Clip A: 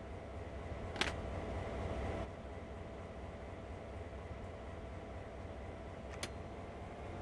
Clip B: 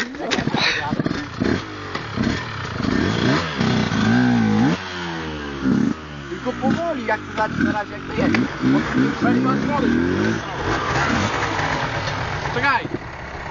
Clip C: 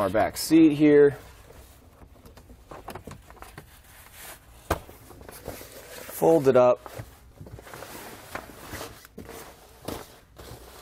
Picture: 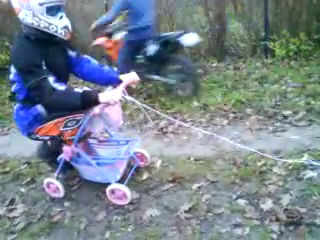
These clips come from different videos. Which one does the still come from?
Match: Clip B